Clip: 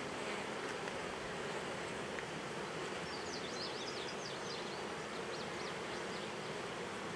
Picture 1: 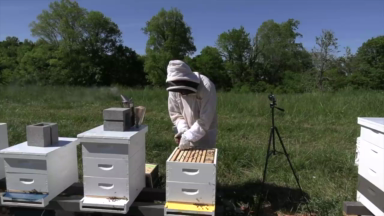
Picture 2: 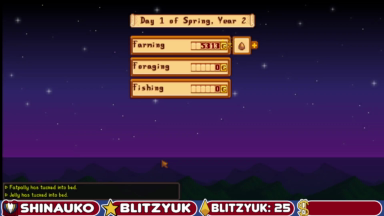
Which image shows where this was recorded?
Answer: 1